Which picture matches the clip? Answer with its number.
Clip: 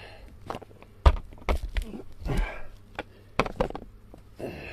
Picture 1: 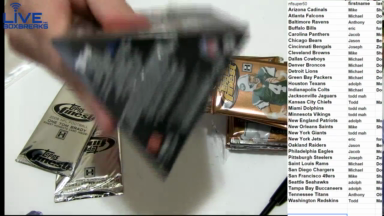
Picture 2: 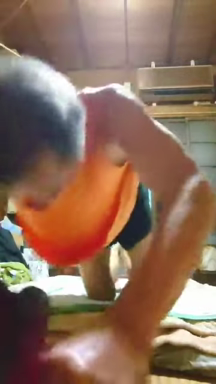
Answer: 2